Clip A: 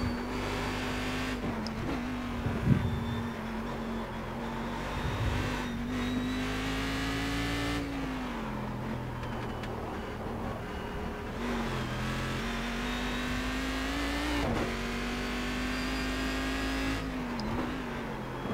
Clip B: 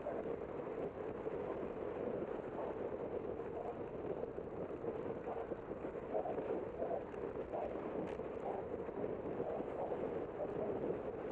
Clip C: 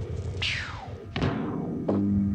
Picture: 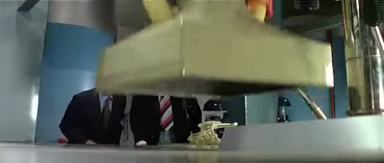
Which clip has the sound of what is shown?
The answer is C